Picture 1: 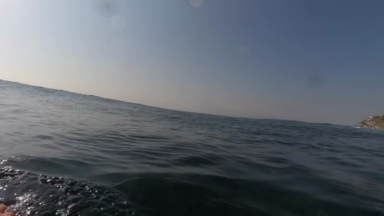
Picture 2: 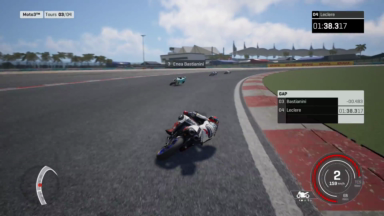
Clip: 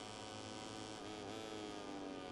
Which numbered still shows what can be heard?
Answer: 2